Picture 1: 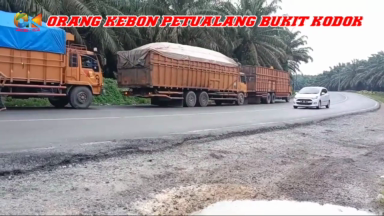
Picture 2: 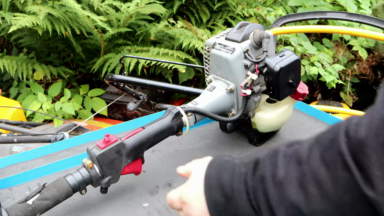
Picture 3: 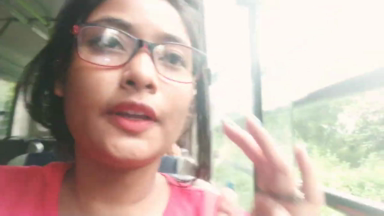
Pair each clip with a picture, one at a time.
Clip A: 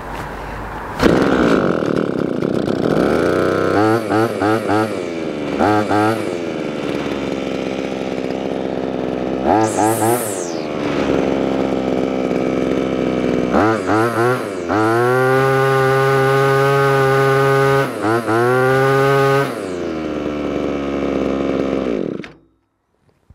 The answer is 2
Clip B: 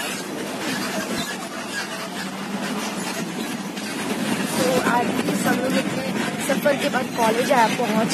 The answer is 3